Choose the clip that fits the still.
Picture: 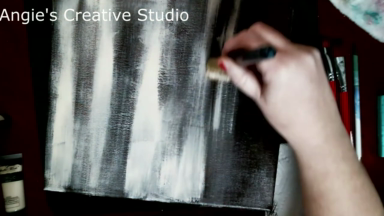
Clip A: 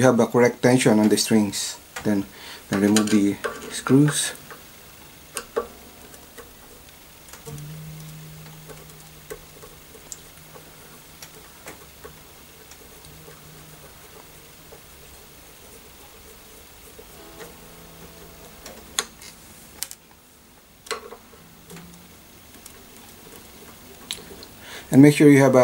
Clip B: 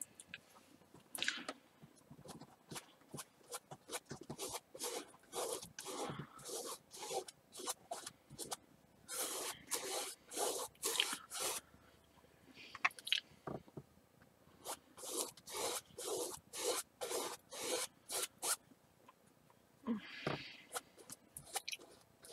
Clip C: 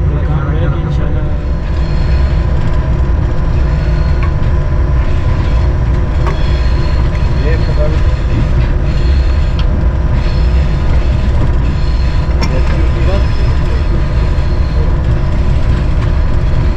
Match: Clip B